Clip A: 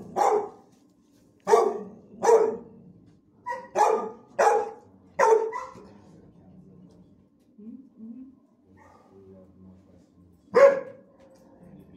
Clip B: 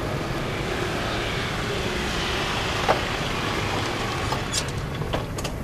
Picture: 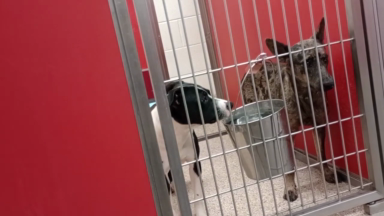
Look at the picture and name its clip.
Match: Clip A